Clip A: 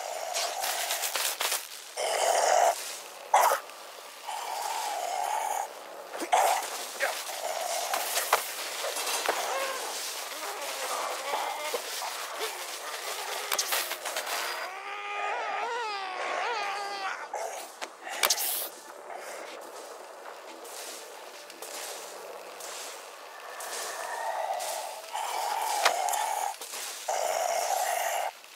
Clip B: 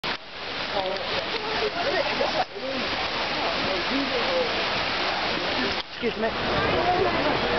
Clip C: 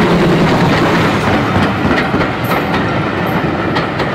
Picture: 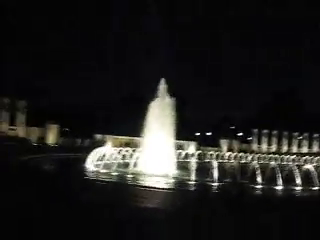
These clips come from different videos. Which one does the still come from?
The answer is B